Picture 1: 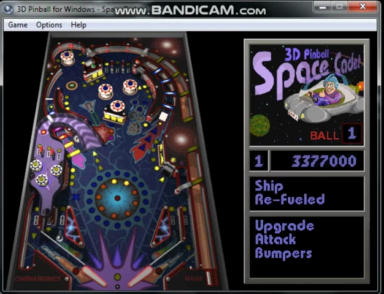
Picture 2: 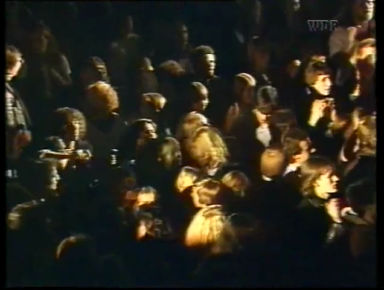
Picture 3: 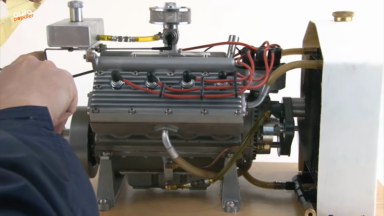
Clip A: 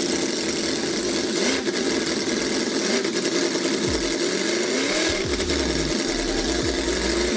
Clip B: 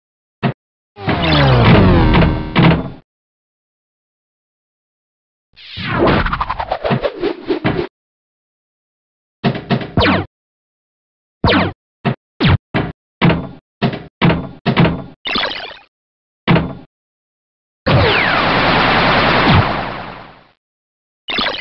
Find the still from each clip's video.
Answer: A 3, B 1